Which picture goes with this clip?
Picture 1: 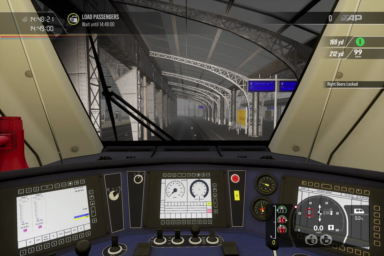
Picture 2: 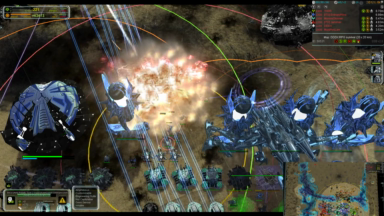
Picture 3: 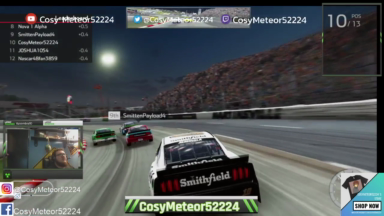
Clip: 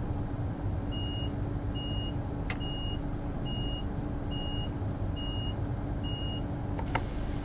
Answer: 1